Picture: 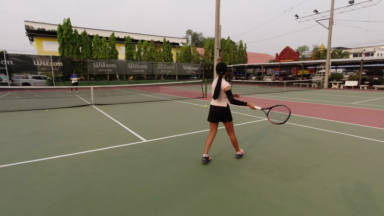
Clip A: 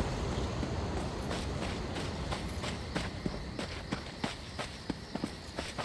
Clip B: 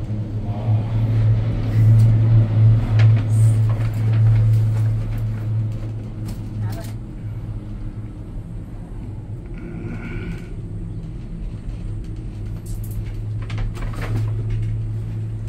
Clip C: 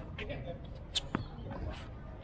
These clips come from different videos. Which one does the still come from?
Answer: C